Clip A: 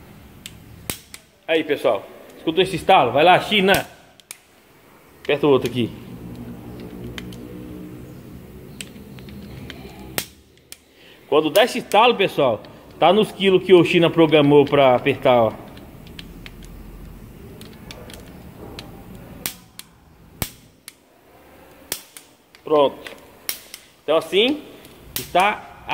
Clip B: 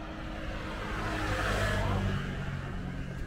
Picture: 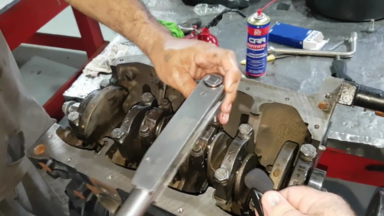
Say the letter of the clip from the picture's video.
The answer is A